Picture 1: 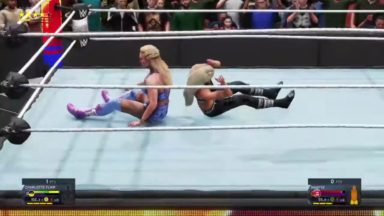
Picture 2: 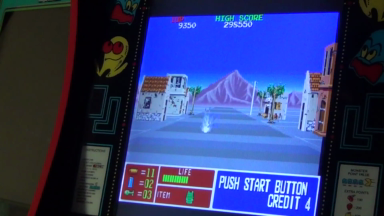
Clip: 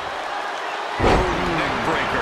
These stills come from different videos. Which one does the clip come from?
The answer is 1